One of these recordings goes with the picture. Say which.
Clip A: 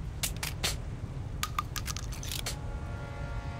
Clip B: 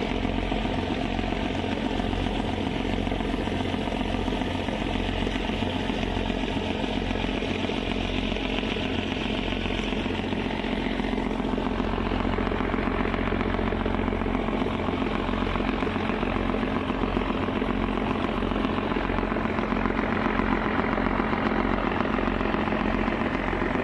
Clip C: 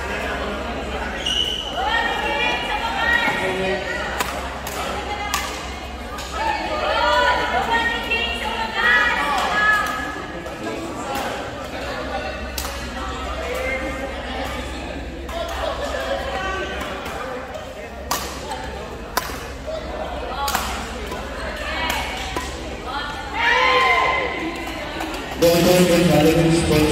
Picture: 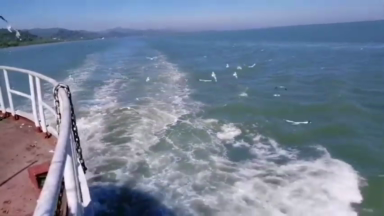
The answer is B